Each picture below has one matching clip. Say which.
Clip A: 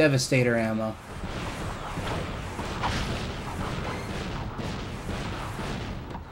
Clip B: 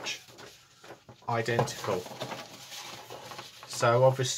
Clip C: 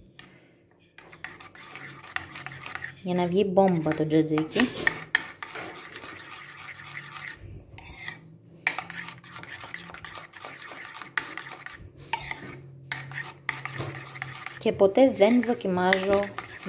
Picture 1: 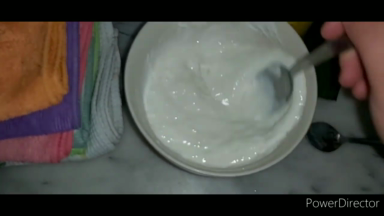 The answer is C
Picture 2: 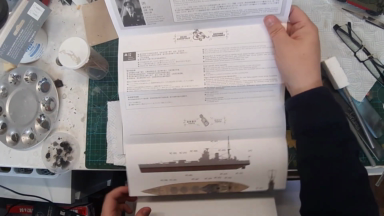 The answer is B